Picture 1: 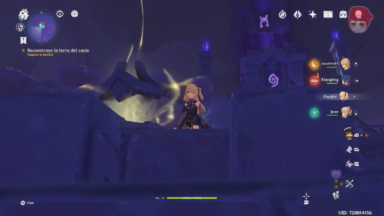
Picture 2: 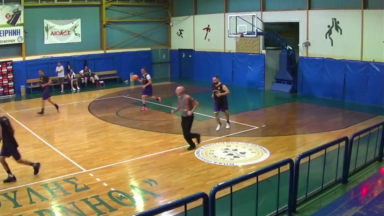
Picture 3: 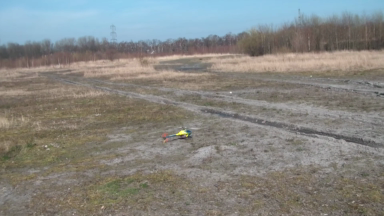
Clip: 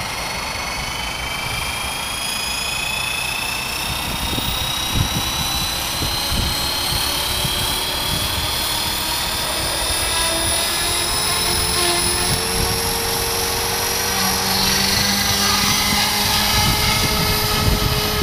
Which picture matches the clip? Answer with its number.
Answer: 3